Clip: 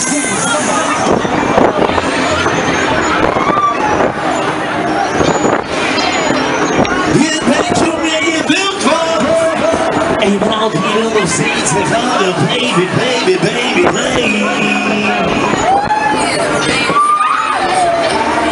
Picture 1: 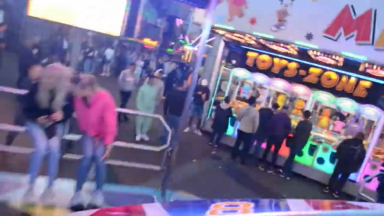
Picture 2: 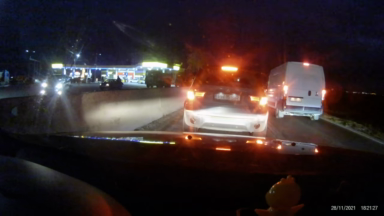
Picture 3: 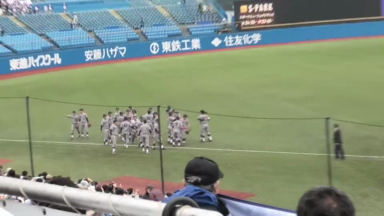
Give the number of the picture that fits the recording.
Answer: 1